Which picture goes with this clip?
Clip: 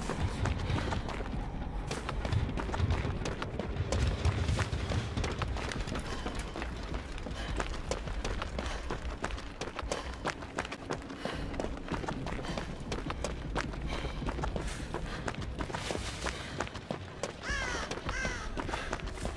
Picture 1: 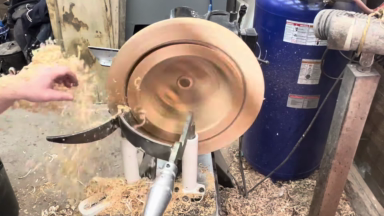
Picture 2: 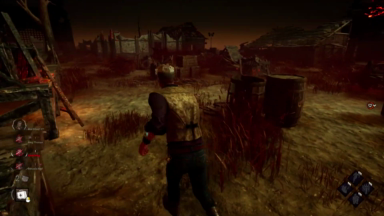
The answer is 2